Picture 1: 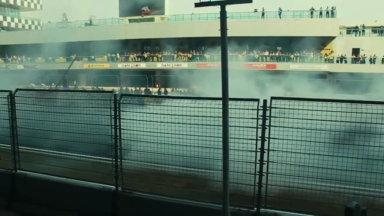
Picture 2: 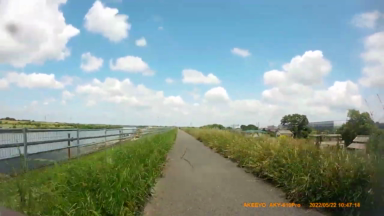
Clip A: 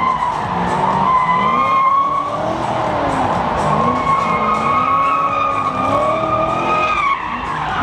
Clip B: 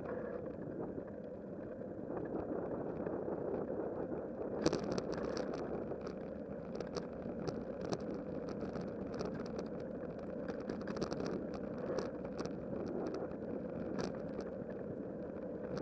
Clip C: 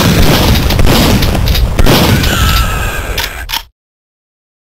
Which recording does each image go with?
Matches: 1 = A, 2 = B